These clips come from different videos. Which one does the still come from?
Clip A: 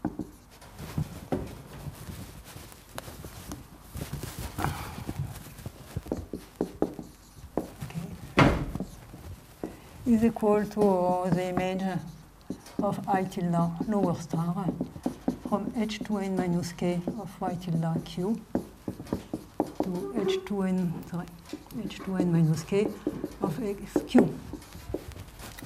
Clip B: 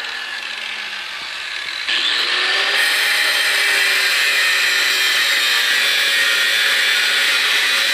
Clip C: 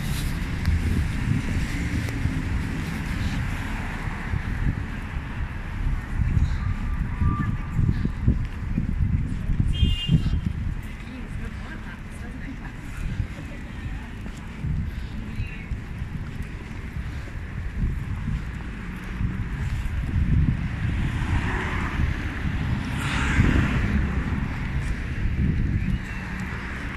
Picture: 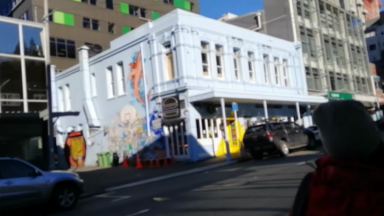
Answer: C